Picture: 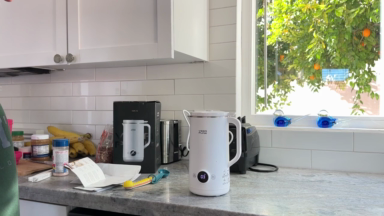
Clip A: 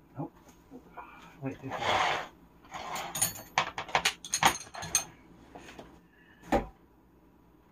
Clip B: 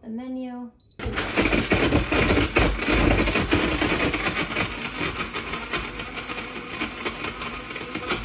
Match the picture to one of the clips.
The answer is B